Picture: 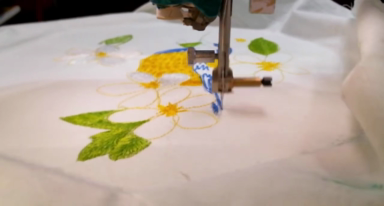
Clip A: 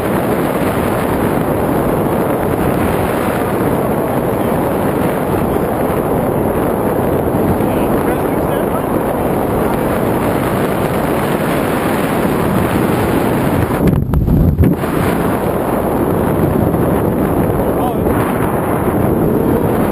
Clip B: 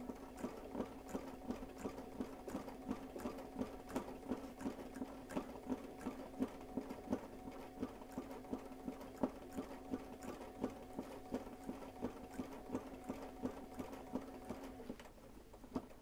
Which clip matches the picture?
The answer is B